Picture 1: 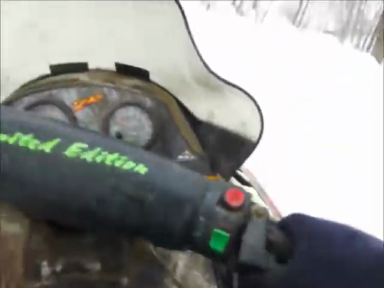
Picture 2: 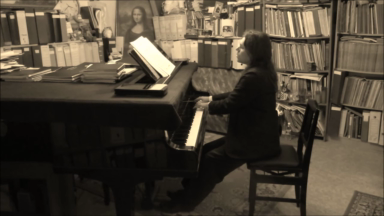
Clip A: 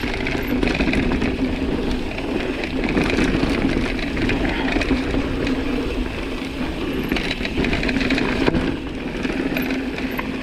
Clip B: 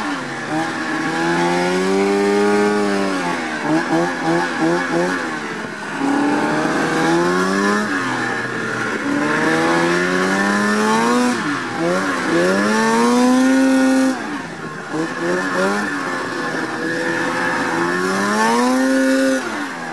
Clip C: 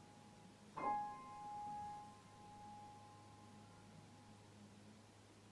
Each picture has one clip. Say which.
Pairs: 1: B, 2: C